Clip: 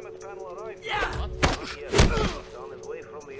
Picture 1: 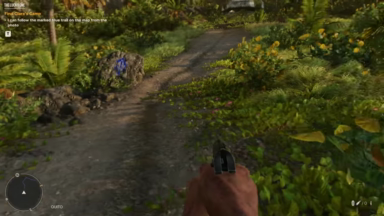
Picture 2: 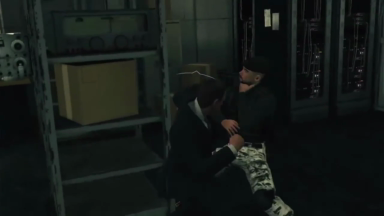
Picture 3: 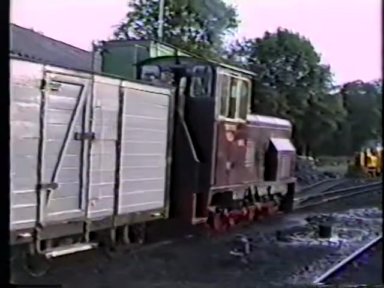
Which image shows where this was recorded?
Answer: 2